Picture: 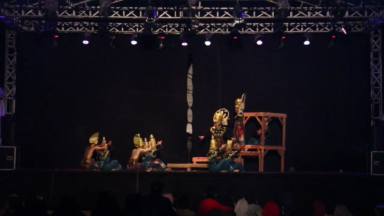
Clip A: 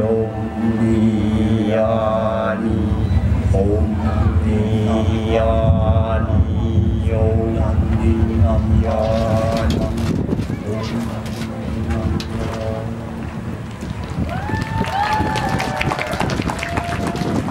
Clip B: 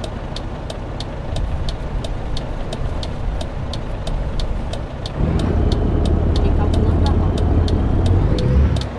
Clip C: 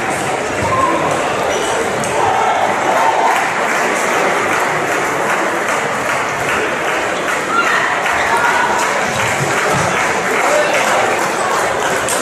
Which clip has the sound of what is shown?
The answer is A